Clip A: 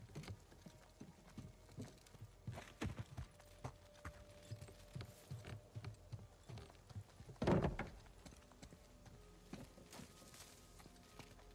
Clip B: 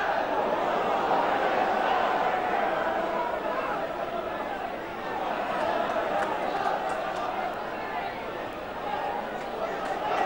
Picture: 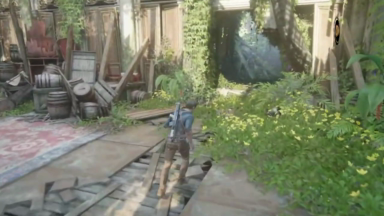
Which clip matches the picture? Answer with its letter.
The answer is A